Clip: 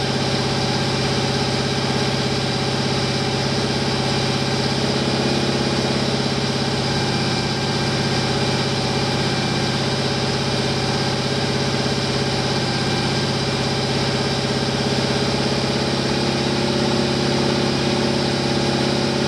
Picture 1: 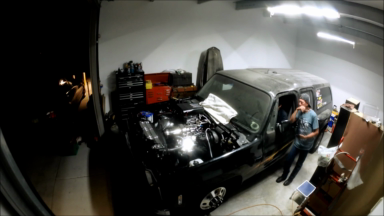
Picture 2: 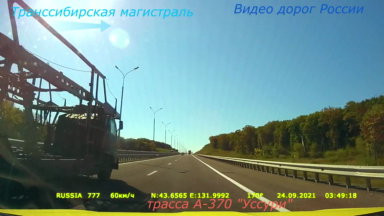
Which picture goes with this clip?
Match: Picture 1